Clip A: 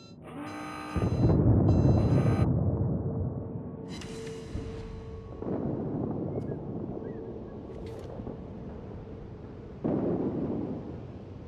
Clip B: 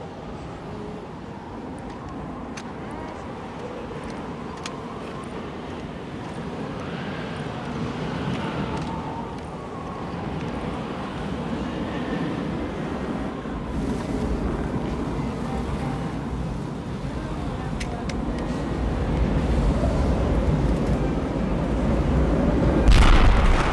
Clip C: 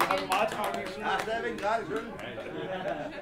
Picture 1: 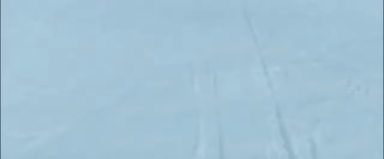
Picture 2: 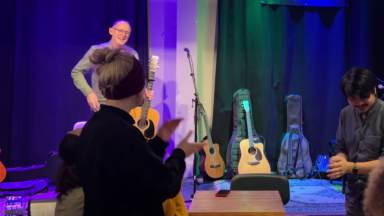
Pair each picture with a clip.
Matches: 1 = B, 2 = C